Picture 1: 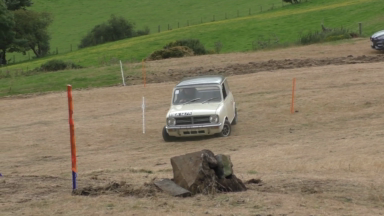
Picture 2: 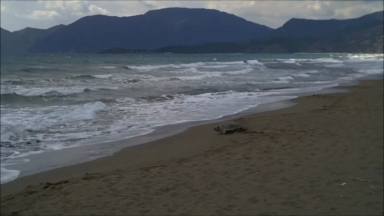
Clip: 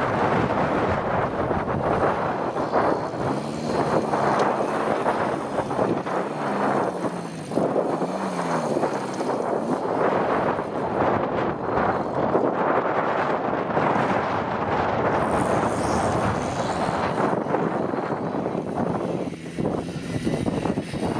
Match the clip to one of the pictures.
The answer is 1